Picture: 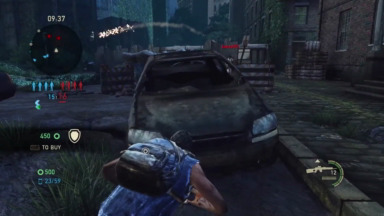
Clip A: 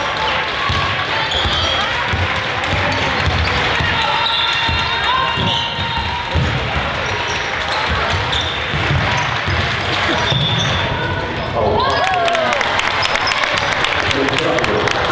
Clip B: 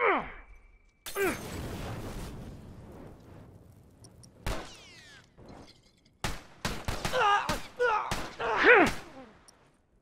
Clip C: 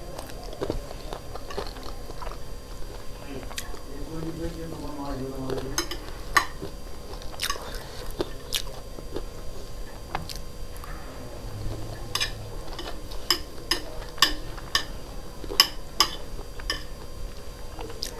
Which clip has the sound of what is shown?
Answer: B